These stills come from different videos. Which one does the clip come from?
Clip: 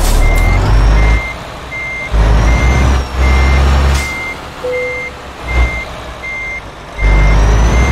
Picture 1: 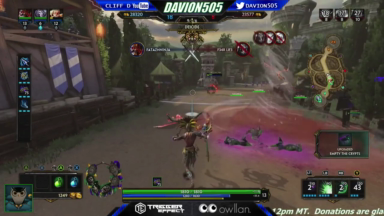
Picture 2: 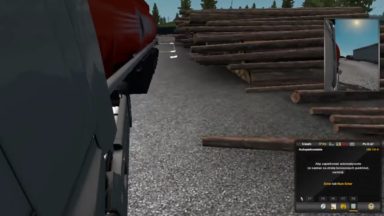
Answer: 2